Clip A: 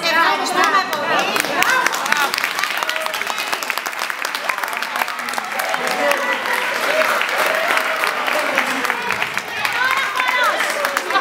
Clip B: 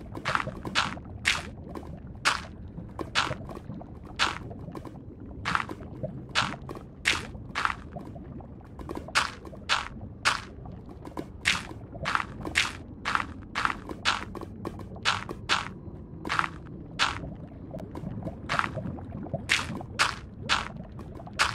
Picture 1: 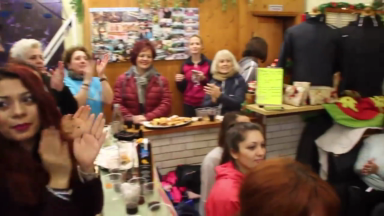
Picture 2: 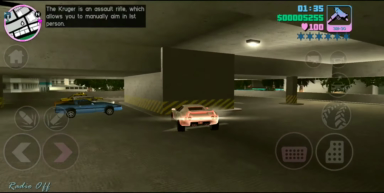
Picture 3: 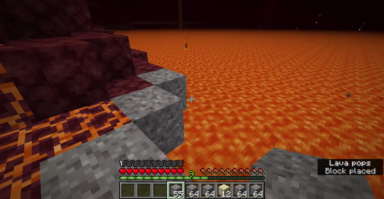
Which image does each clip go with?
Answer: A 1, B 3